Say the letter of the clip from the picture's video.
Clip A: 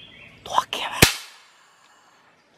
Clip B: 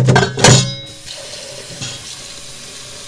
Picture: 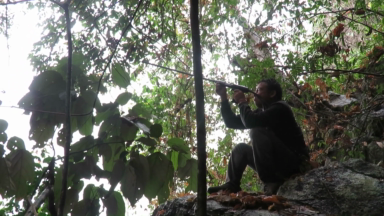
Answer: A